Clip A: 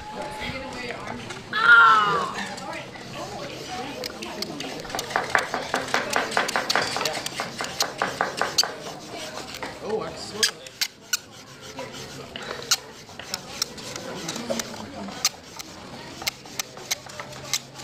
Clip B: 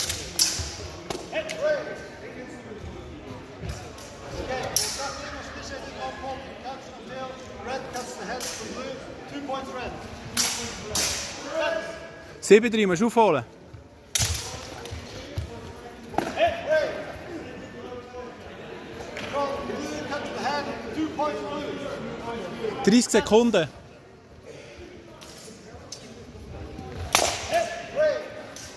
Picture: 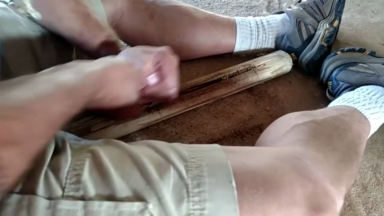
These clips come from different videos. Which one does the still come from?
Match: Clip A